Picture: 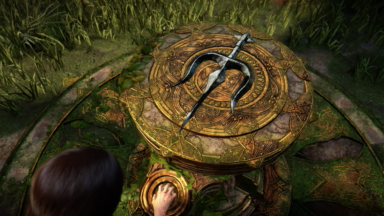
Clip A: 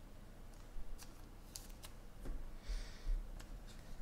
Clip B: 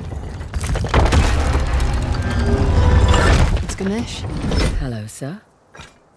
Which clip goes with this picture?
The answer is B